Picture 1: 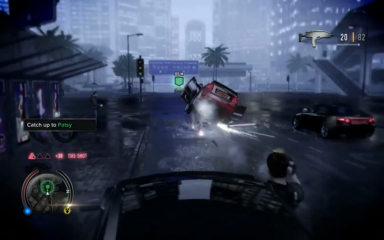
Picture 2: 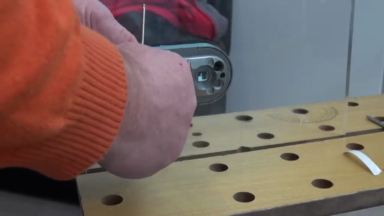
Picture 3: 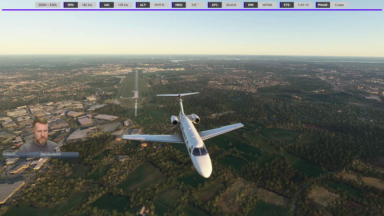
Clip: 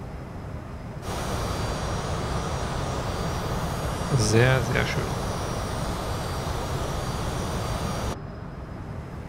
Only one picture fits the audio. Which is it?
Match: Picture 3